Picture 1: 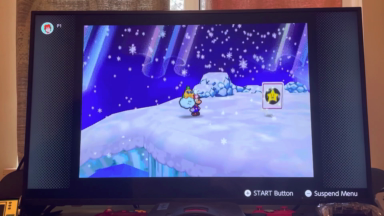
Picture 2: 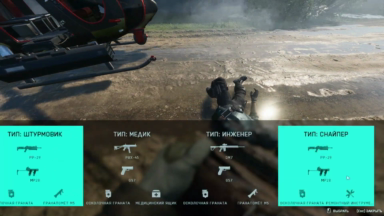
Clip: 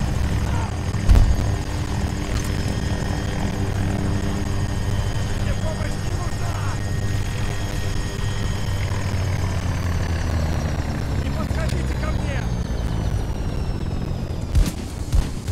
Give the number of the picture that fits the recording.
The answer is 2